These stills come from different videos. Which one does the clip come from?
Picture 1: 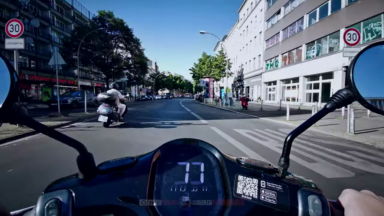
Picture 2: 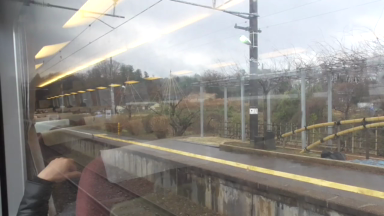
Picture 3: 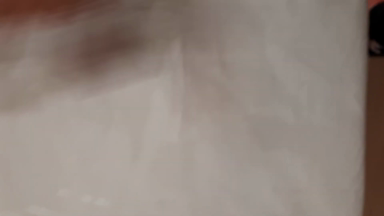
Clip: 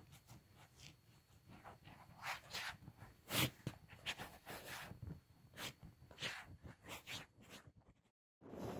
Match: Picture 3